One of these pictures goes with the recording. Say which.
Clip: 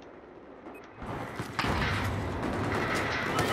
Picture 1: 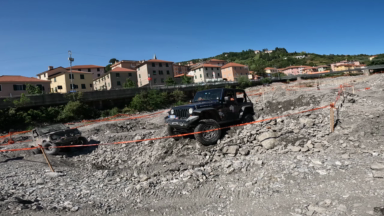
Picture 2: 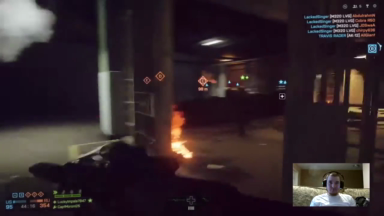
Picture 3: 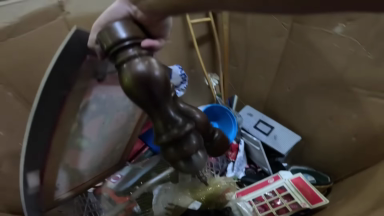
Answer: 2